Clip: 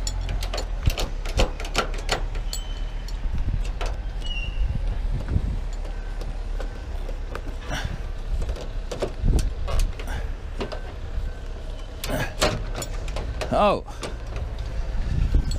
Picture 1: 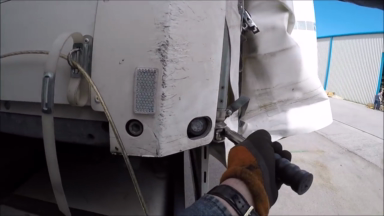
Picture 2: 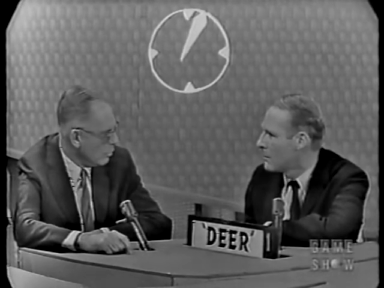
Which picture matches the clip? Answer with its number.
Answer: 1